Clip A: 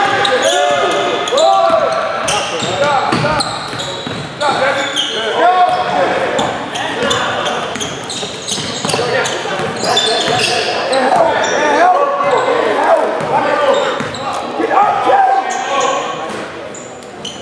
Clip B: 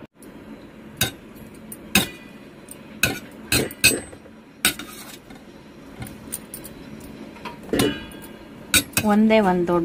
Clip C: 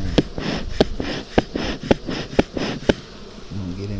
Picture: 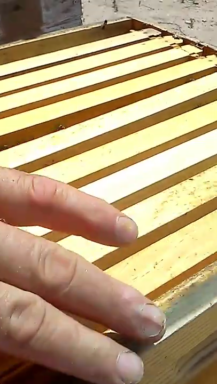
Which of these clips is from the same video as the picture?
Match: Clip C